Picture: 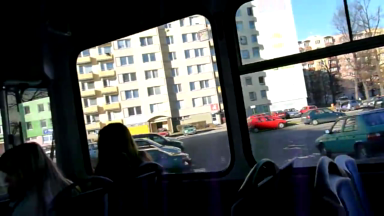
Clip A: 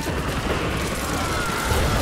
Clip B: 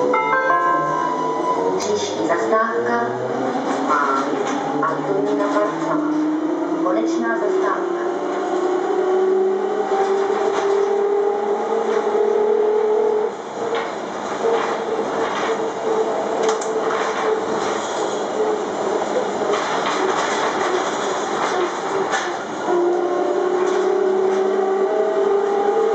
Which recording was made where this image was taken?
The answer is B